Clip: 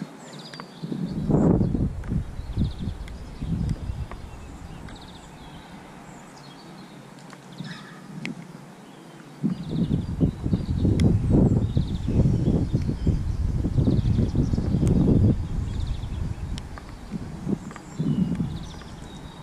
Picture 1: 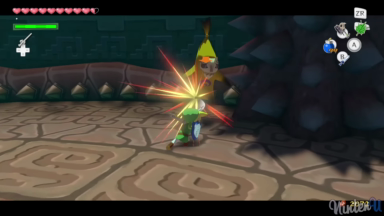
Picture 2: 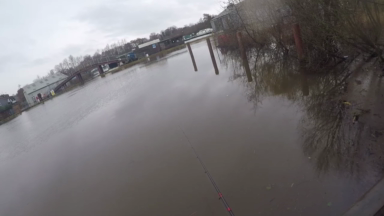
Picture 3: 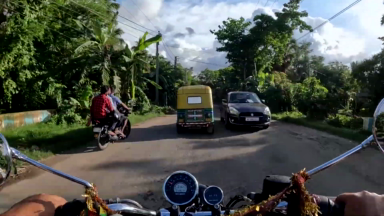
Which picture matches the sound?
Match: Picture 2